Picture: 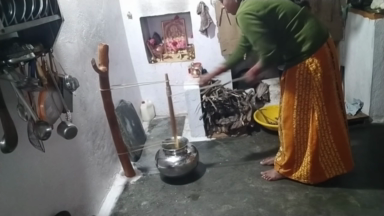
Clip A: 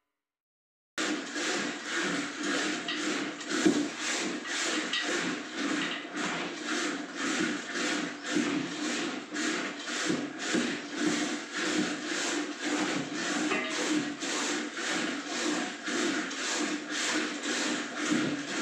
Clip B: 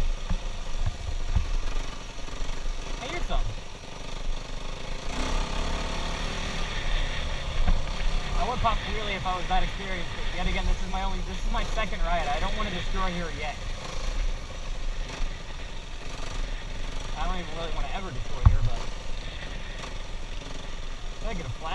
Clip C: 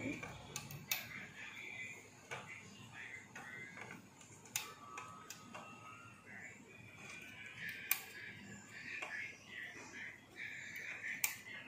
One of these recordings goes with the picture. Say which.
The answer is A